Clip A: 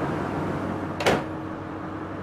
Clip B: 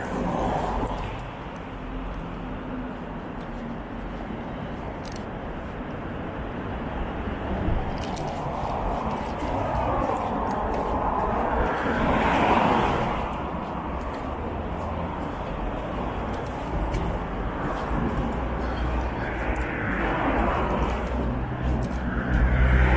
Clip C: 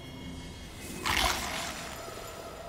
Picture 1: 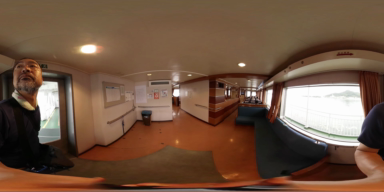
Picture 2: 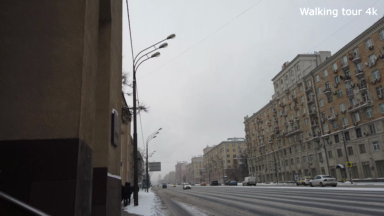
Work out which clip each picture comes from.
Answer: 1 A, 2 B